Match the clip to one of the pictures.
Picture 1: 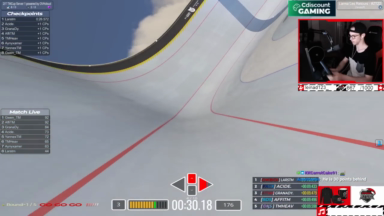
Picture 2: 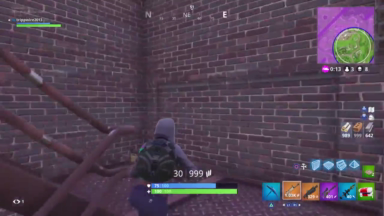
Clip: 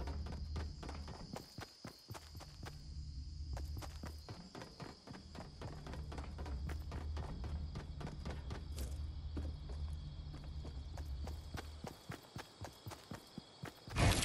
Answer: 2